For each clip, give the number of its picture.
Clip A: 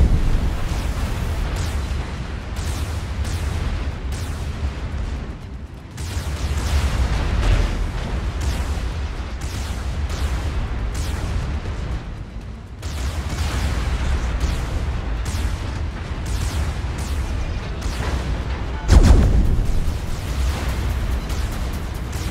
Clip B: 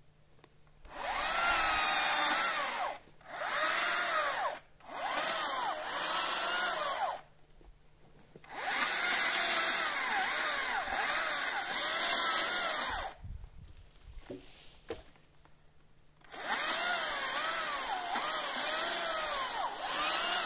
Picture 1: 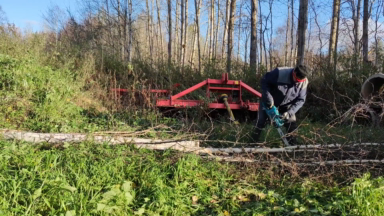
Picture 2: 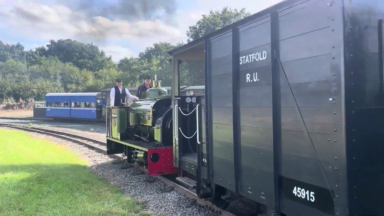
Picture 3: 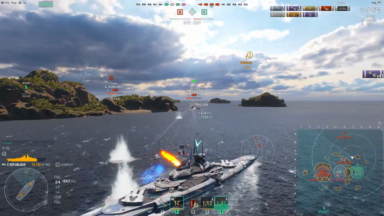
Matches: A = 3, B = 1